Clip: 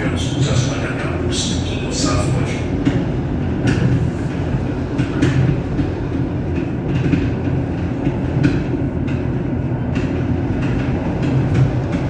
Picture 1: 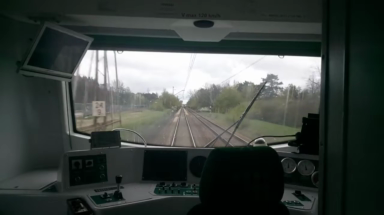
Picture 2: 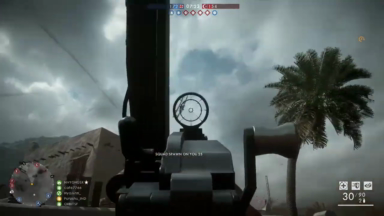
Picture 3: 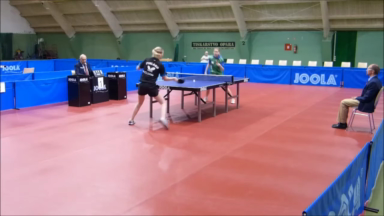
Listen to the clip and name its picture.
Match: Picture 1